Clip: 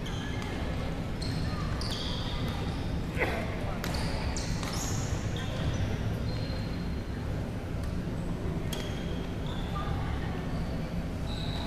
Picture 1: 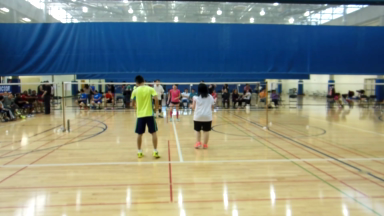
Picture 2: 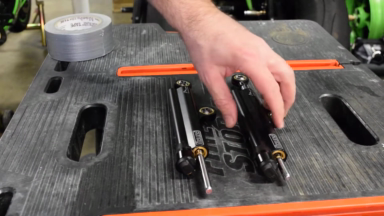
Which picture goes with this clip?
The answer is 1